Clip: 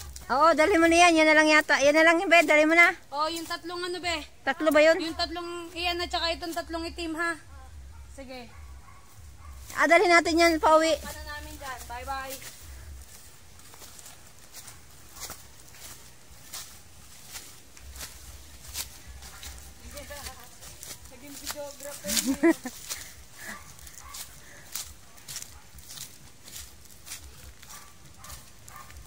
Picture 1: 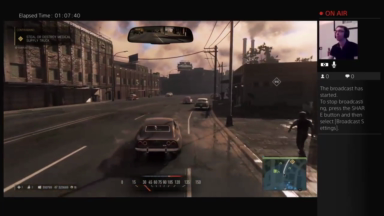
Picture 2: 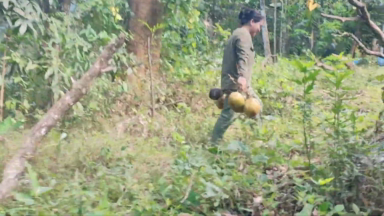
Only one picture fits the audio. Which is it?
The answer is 2